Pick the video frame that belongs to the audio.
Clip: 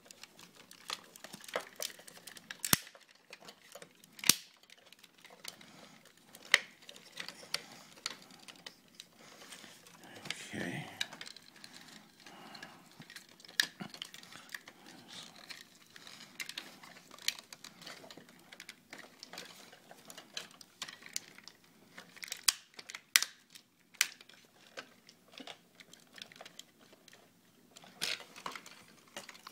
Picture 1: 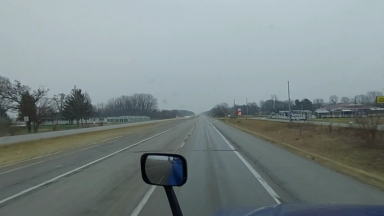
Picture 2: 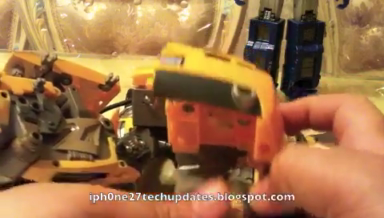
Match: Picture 2